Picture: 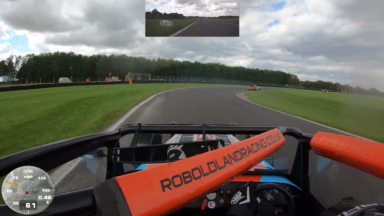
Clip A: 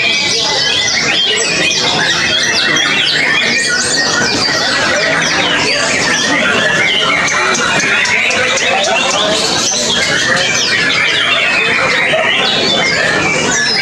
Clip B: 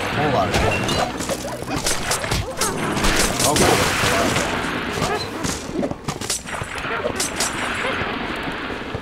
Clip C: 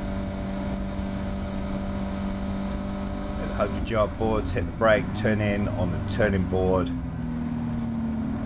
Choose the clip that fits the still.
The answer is C